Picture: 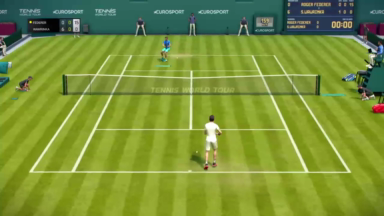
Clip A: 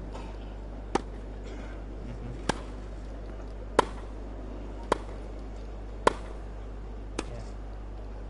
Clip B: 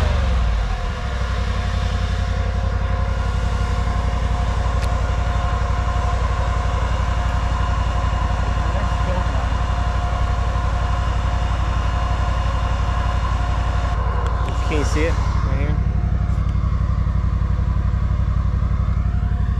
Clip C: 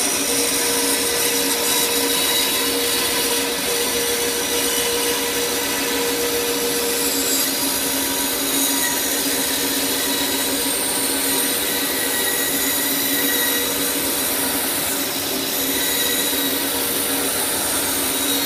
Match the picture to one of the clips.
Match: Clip A